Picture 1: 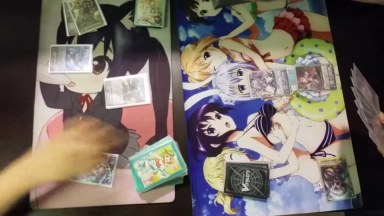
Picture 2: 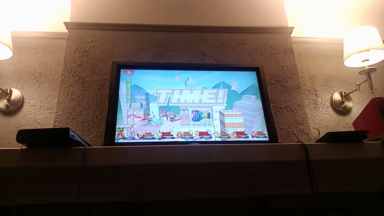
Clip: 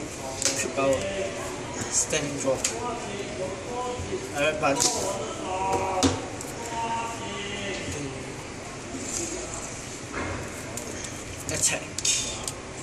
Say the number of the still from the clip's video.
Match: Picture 1